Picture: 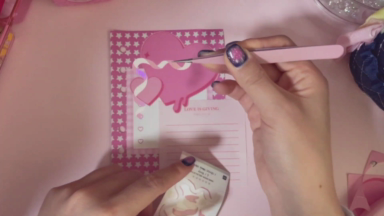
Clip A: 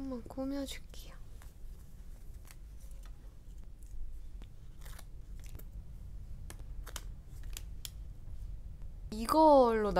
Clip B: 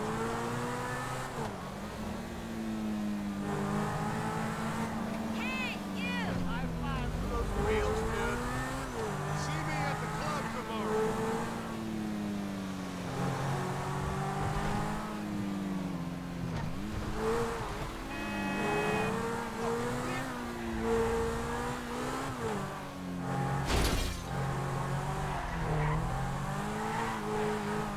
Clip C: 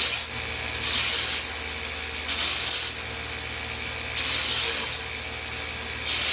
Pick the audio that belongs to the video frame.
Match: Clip A